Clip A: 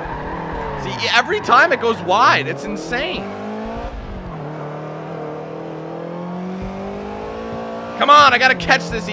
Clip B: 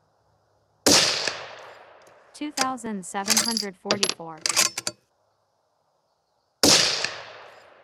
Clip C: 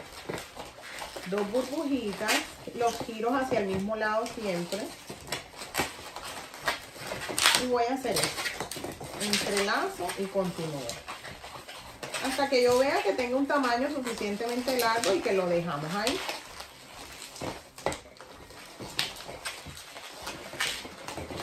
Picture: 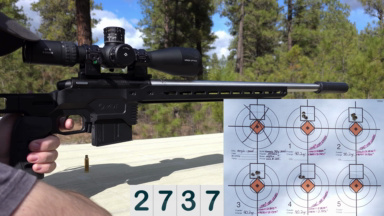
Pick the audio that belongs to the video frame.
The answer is B